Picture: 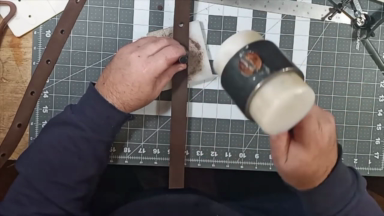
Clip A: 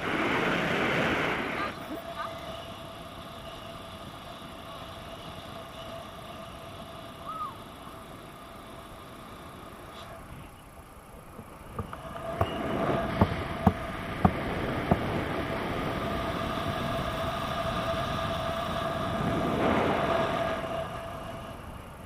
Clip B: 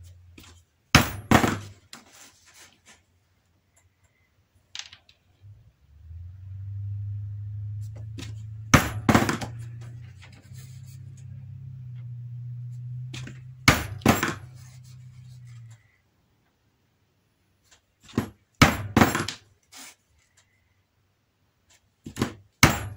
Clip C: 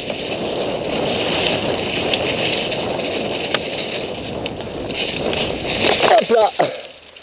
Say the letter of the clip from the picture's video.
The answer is B